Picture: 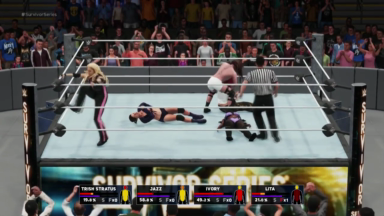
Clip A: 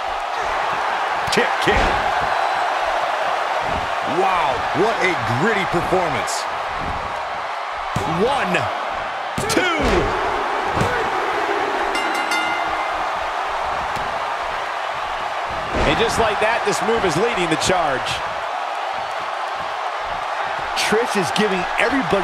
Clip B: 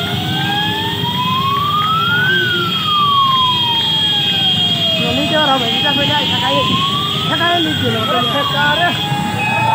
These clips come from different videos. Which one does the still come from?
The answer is A